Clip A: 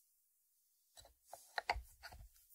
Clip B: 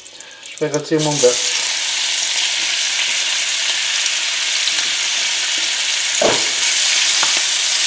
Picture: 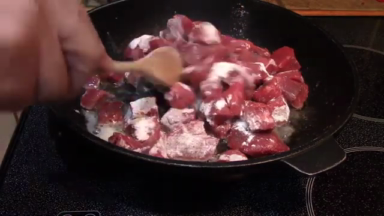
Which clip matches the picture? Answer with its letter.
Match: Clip B